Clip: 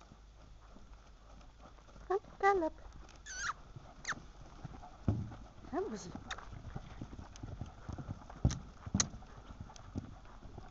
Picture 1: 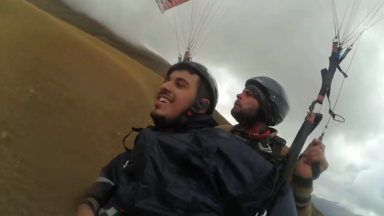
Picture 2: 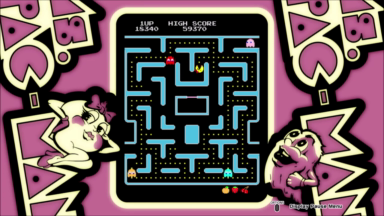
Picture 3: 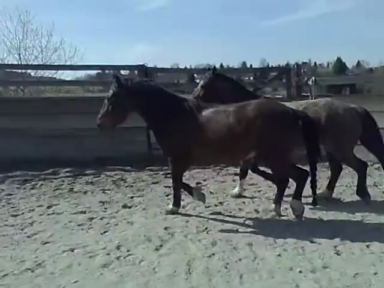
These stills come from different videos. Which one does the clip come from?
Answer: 3